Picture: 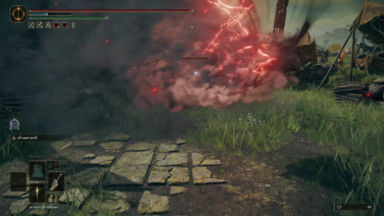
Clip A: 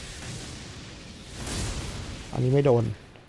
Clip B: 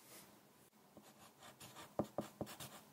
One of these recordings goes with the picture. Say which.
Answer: A